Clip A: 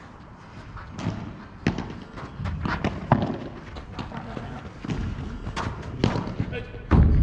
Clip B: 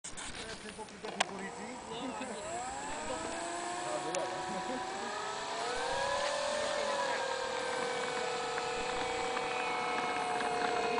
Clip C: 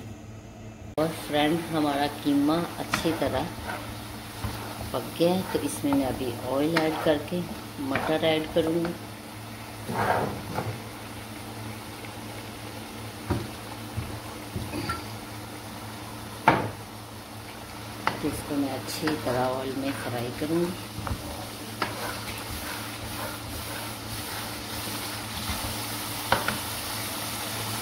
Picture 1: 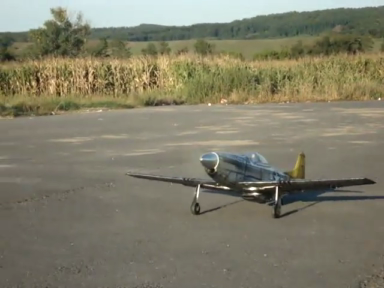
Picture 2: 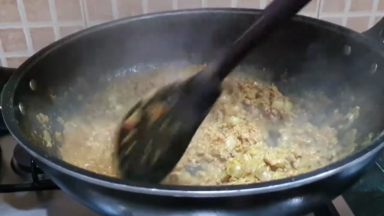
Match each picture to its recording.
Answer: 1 B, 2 C